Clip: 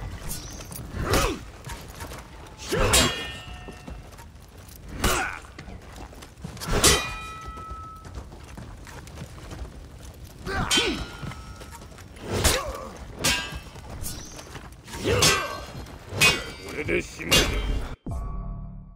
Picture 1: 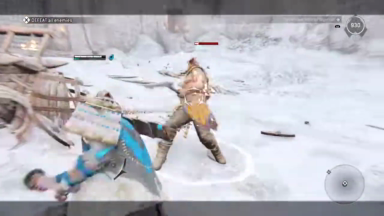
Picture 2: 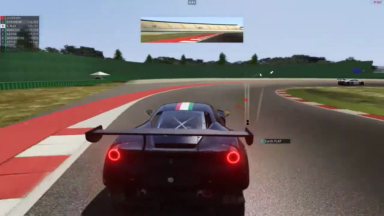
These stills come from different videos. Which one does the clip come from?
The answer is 1